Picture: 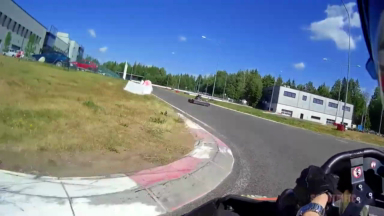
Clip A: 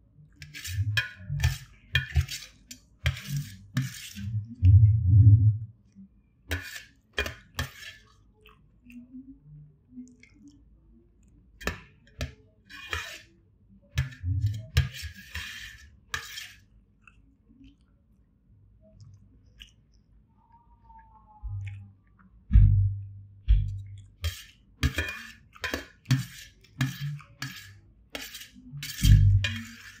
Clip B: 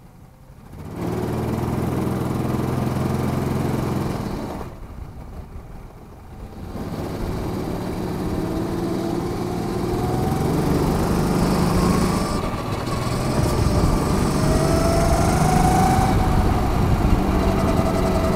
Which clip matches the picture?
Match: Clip B